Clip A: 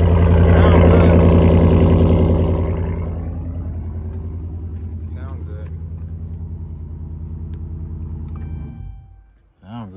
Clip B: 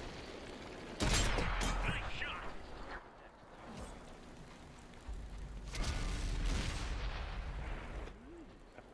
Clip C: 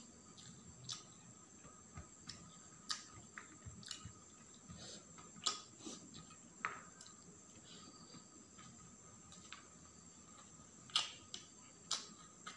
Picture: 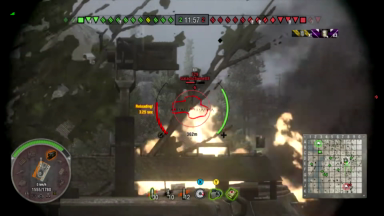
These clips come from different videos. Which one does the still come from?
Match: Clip B